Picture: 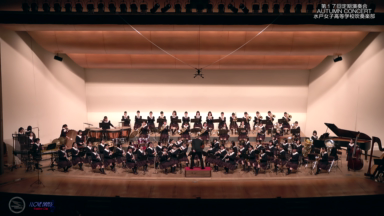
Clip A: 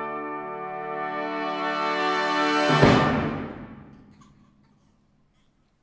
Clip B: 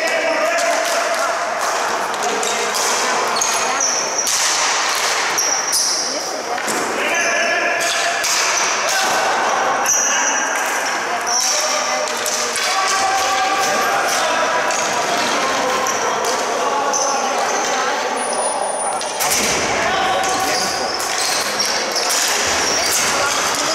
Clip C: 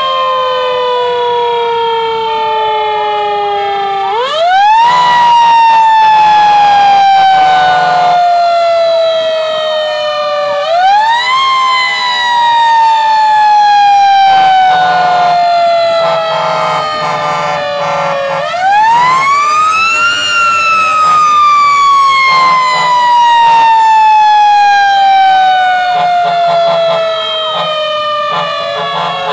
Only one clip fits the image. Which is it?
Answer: A